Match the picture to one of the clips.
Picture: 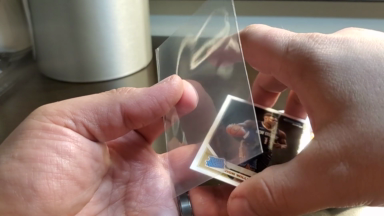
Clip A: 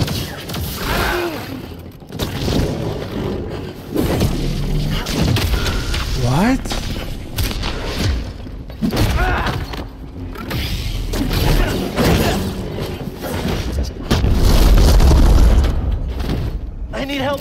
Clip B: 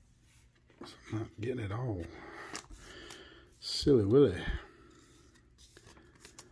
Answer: B